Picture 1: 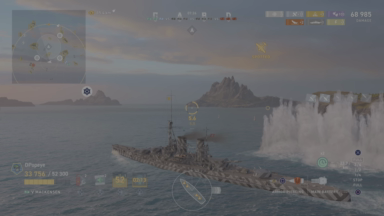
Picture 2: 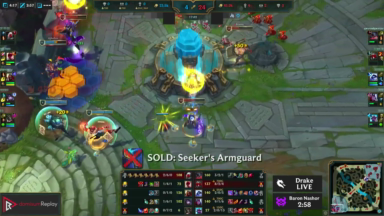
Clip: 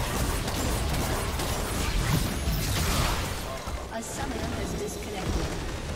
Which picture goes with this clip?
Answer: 2